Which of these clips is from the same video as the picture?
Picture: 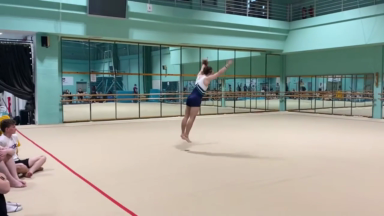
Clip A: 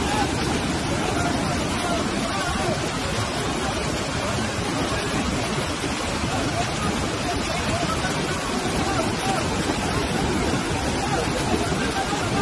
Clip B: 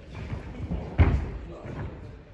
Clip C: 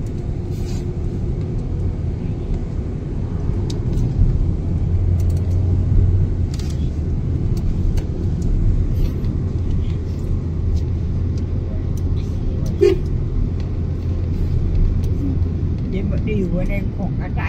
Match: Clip B